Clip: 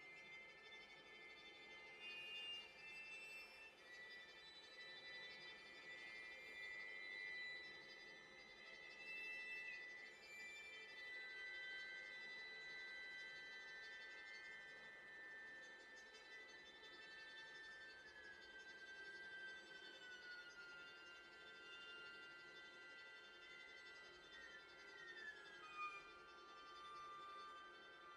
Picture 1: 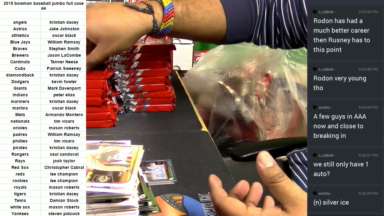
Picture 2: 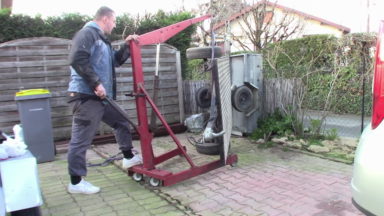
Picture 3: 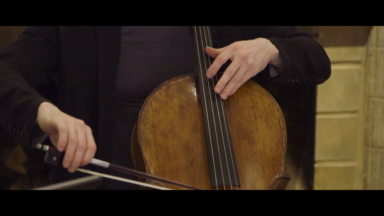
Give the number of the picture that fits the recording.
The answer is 3